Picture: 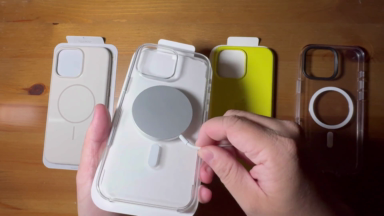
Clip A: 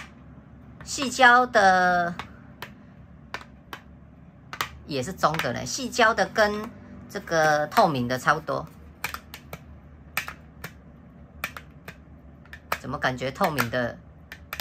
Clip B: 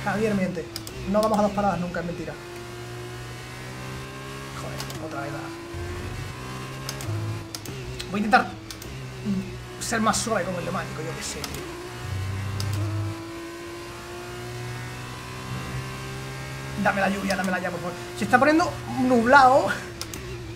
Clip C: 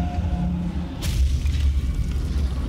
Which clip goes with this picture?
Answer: A